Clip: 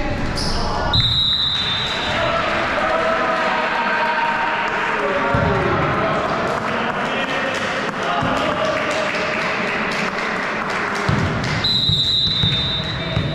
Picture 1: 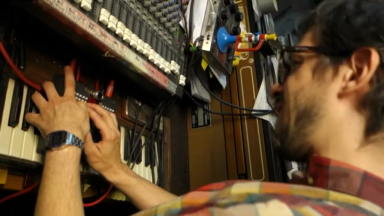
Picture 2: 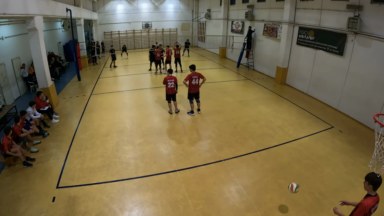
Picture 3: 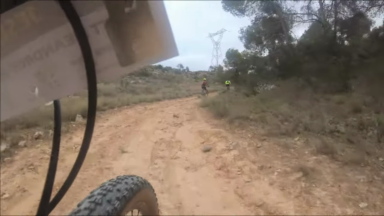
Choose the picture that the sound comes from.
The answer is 2